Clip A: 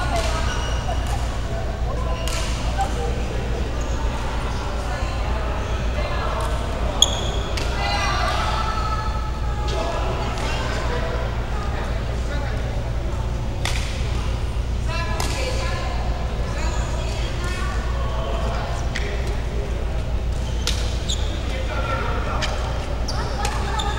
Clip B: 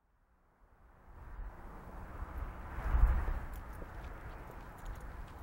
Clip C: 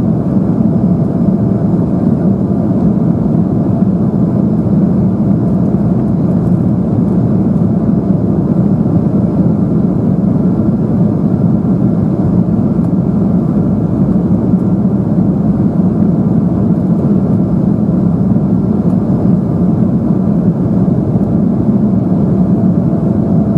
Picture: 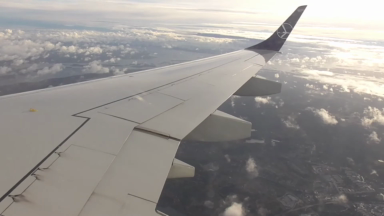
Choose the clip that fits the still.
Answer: C